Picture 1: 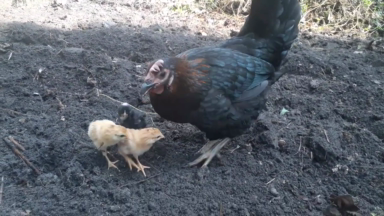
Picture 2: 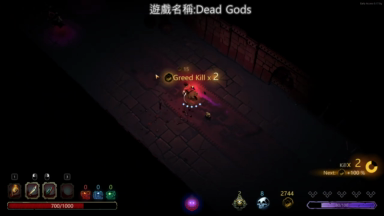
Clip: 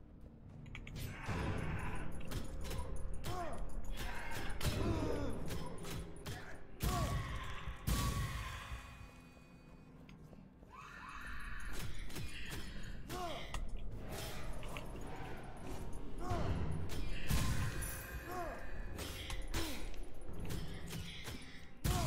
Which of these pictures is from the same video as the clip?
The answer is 2